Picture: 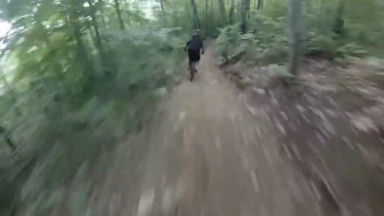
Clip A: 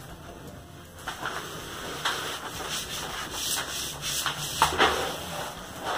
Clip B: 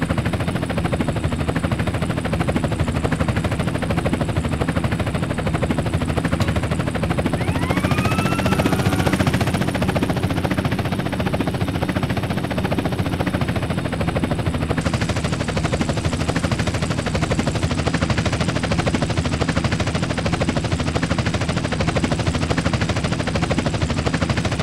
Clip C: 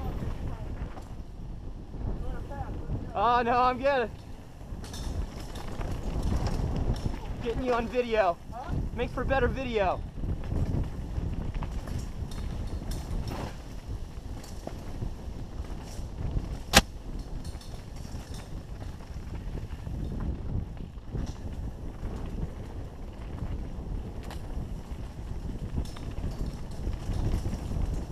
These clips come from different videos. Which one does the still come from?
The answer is C